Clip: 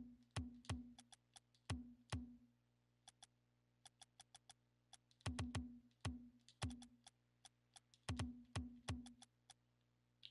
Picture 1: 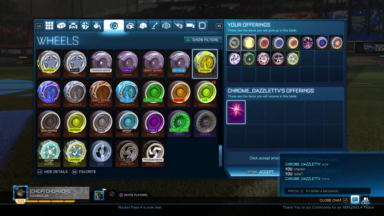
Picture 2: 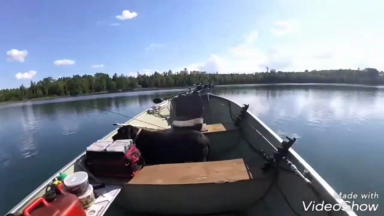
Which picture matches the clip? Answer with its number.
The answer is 1